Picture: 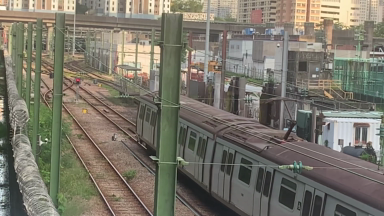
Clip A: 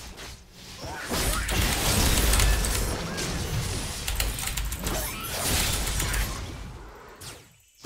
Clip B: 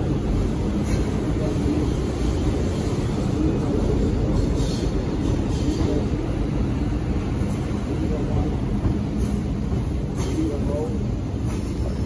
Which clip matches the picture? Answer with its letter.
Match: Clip B